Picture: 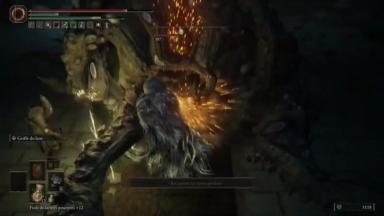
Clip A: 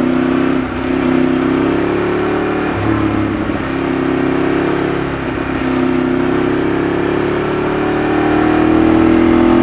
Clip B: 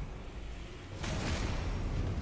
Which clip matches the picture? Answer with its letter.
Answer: B